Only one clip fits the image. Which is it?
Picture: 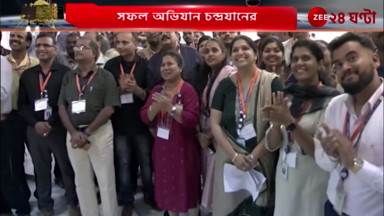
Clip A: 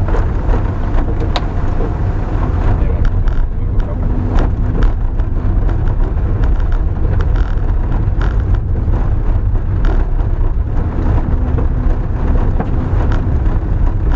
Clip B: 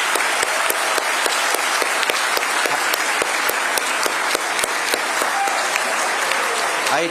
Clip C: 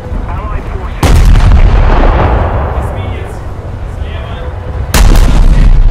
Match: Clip B